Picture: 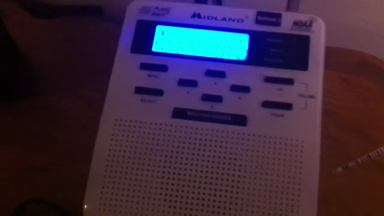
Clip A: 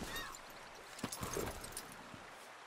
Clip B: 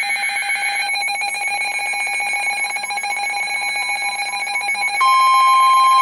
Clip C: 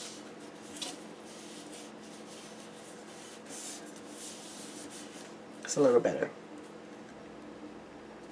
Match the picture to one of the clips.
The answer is B